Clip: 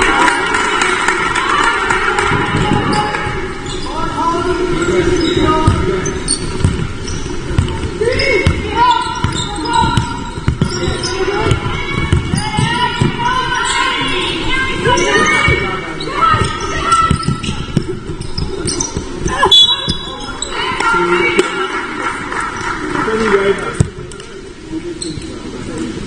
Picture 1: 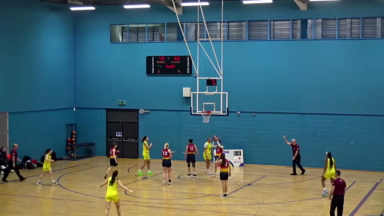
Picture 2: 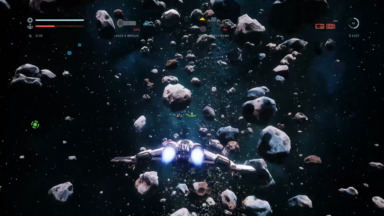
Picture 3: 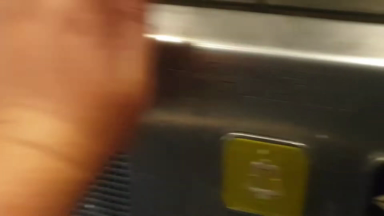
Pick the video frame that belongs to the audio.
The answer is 1